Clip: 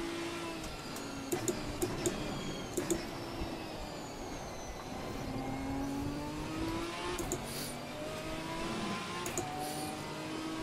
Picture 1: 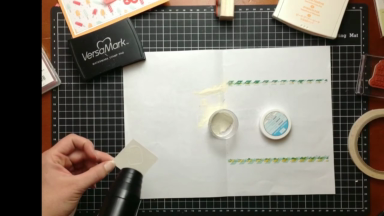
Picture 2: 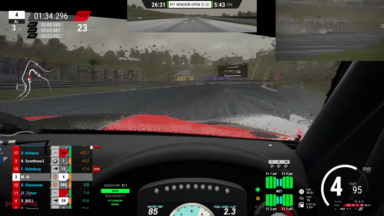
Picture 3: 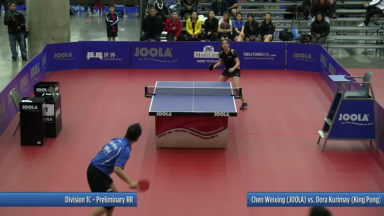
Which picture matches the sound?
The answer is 2